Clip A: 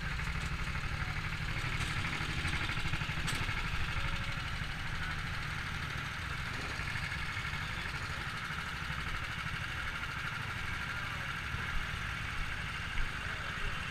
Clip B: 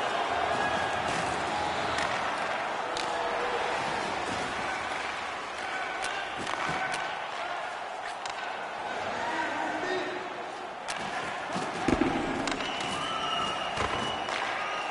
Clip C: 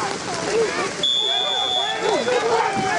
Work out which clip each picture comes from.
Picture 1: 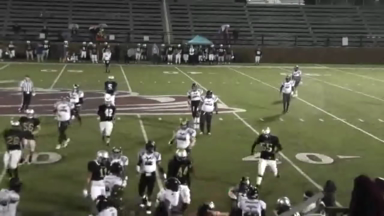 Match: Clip C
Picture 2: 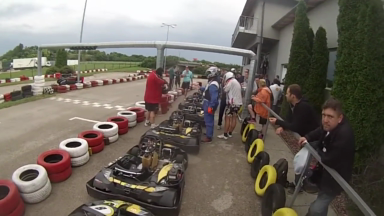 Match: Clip A